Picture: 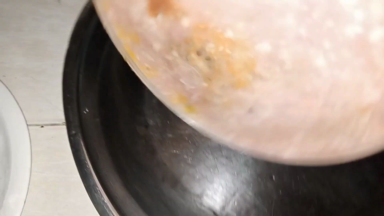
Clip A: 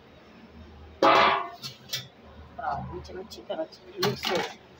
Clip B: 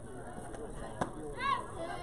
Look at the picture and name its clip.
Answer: A